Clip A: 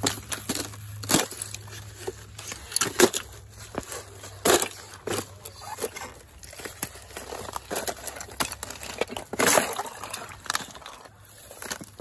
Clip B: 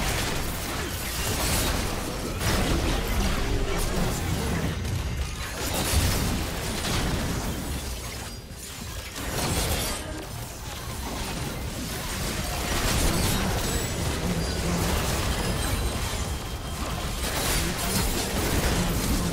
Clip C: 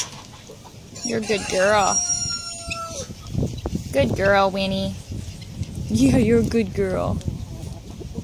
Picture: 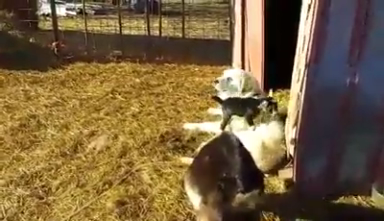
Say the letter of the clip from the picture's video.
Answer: C